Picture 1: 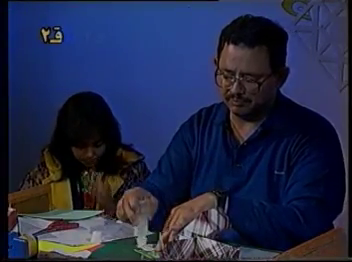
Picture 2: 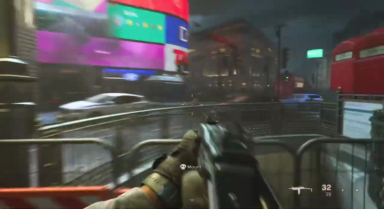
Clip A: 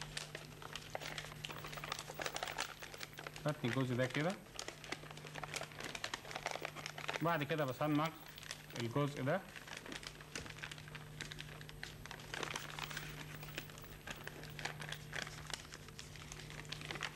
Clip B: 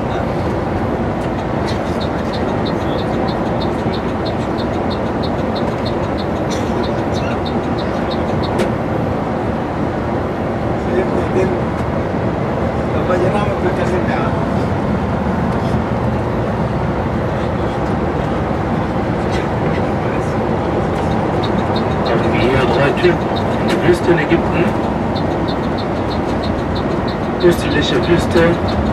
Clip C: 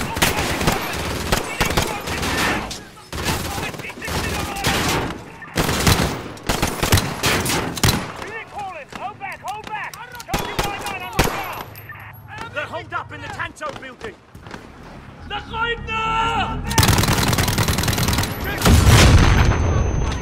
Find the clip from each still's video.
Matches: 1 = A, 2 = C